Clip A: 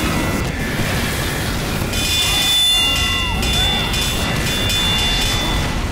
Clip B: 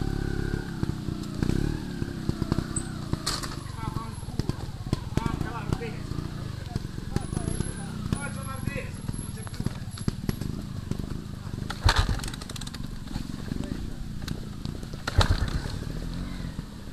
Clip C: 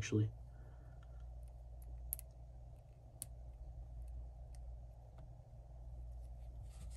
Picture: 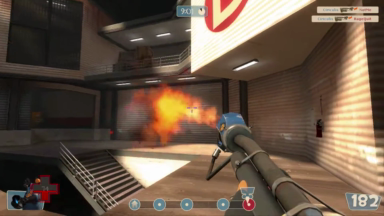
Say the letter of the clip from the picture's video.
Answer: A